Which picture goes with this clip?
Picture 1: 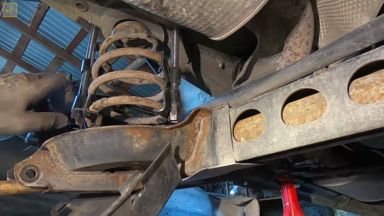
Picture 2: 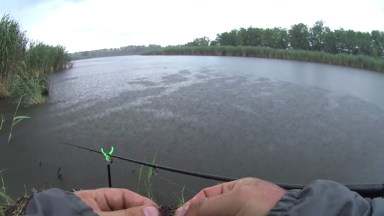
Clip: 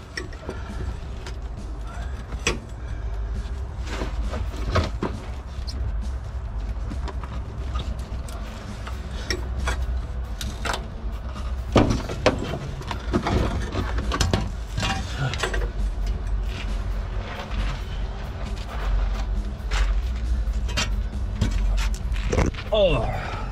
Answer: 1